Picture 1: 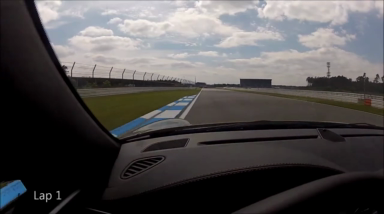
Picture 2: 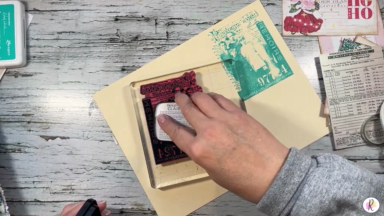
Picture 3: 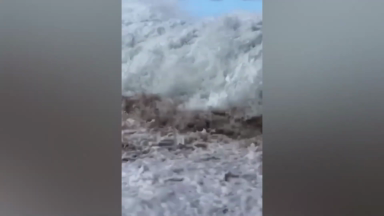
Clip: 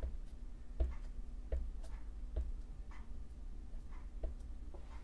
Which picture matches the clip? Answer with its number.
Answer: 2